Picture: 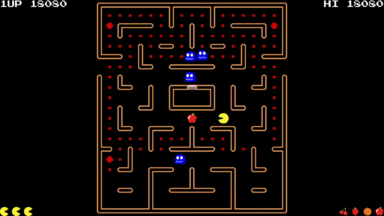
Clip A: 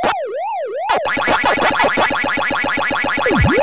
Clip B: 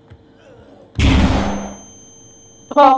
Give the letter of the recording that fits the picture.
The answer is A